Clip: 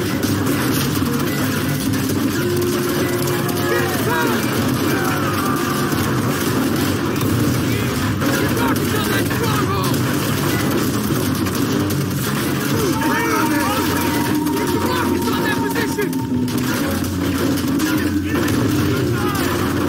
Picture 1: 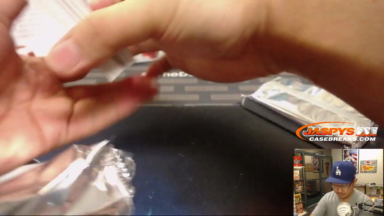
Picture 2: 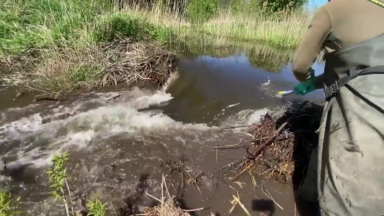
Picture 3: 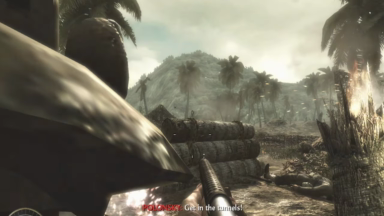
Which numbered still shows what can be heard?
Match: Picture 3